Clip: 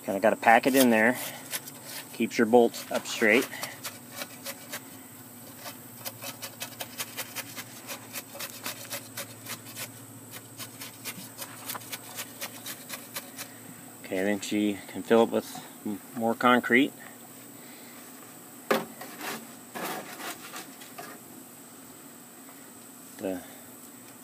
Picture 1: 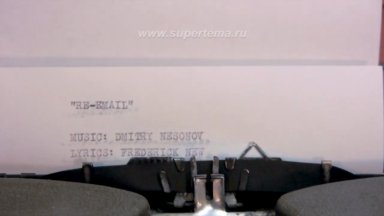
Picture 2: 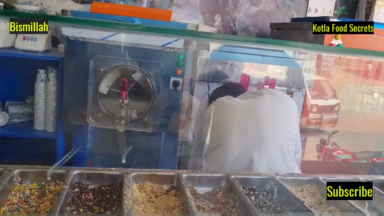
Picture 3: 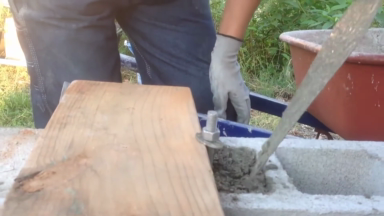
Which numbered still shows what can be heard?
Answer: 3